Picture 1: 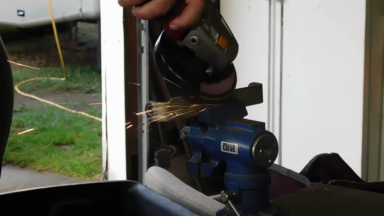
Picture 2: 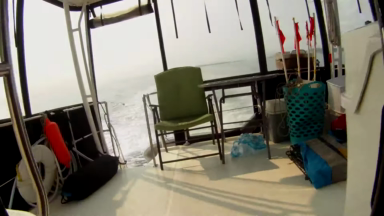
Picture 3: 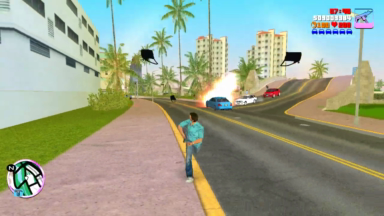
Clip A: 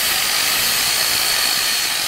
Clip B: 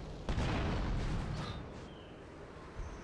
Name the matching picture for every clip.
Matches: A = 1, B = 3